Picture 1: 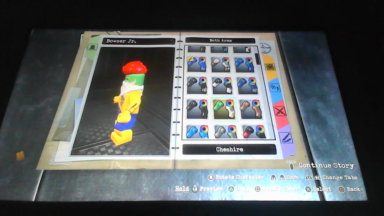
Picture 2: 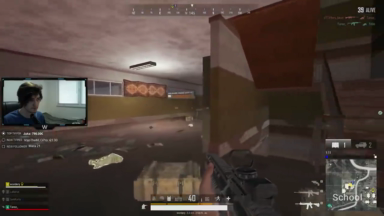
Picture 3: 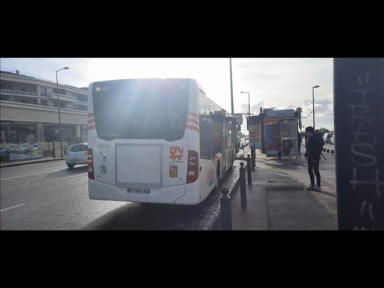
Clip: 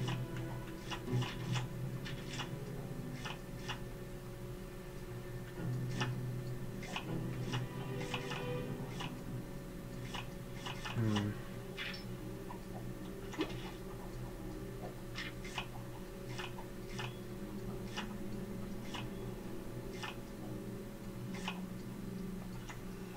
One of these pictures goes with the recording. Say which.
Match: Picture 1